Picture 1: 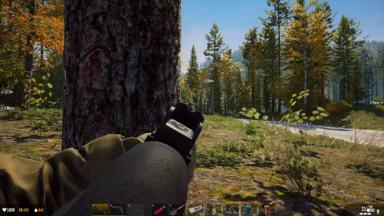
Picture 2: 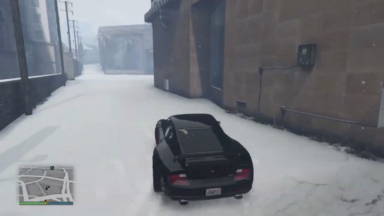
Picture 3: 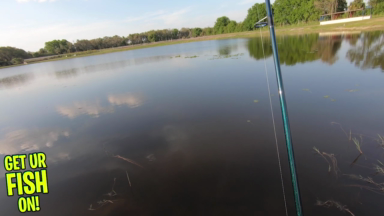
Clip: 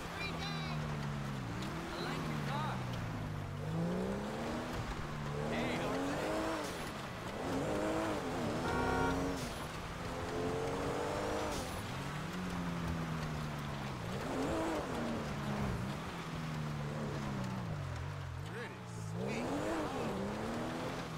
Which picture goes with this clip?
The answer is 2